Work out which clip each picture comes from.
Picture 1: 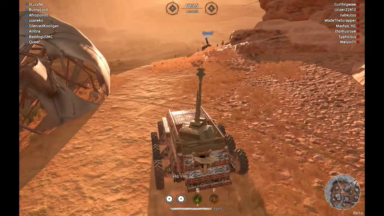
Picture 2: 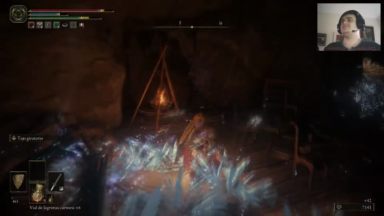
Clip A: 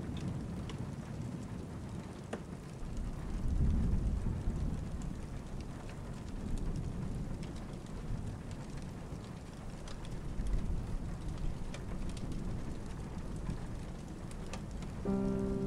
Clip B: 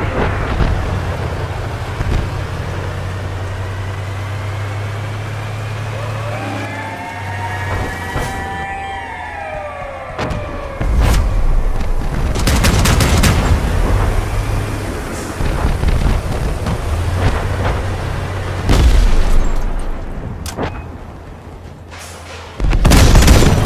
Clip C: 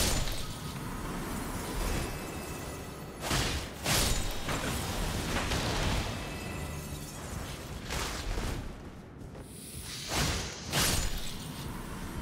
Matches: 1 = B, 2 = C